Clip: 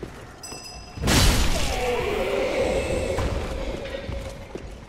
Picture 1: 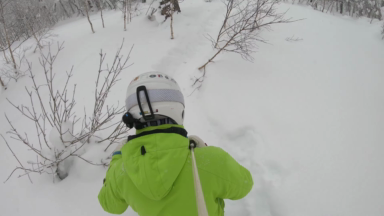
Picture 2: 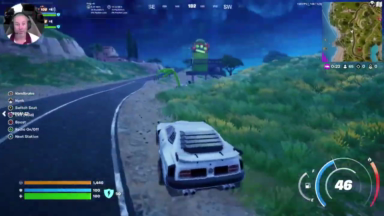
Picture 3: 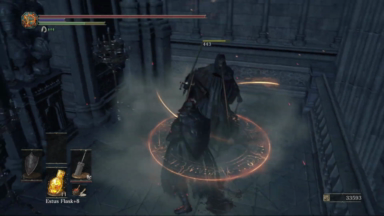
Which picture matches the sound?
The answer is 3